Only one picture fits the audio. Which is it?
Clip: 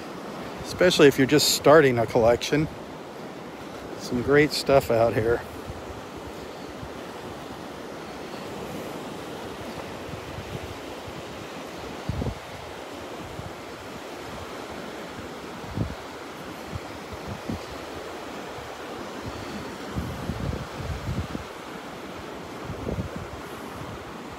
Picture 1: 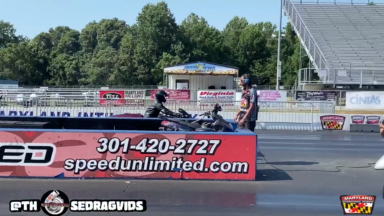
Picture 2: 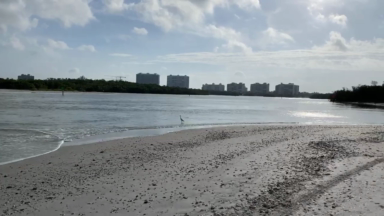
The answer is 2